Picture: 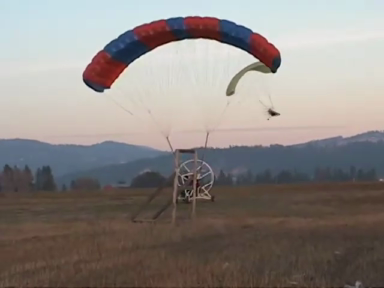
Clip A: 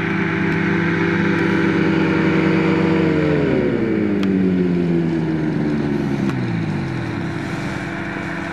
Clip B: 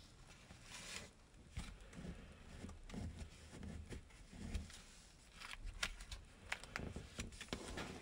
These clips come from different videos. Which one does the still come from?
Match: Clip A